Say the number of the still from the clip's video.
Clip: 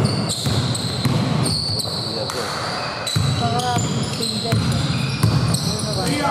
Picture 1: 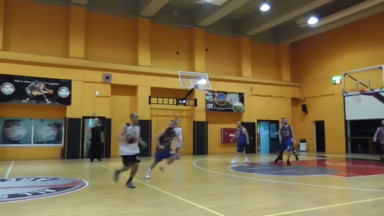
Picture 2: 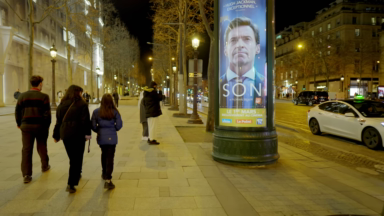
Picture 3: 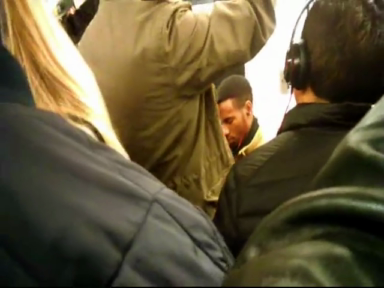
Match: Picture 1